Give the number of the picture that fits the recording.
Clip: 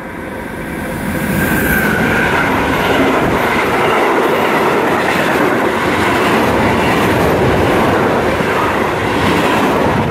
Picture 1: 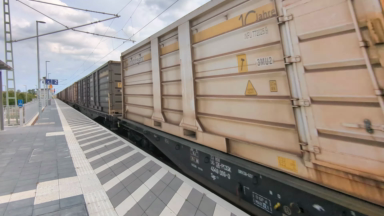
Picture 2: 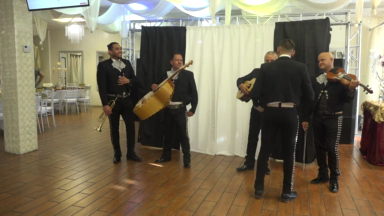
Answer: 1